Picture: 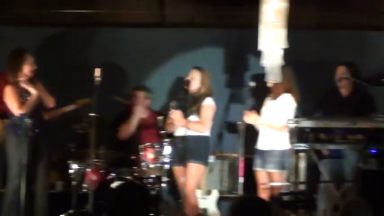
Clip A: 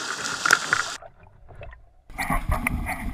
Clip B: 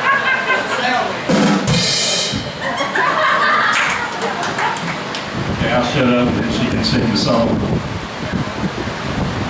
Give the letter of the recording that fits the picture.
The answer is B